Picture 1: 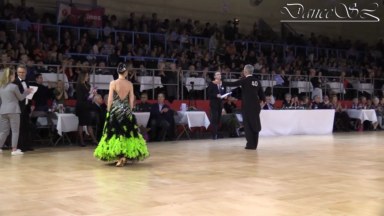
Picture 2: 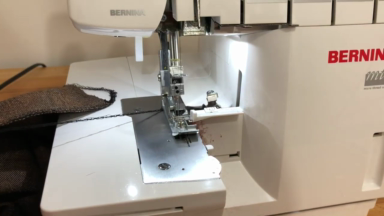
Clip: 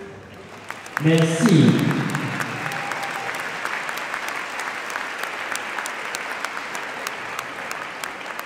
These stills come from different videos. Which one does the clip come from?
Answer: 1